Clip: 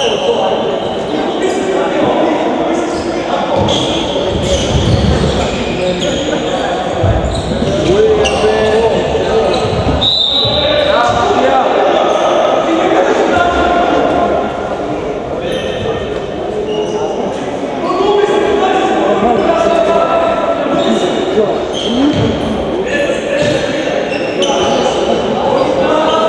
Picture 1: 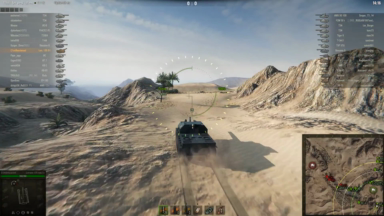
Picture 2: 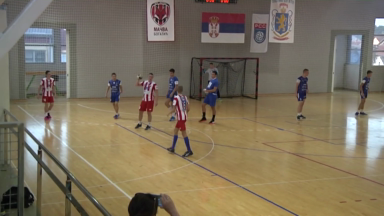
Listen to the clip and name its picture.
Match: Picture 2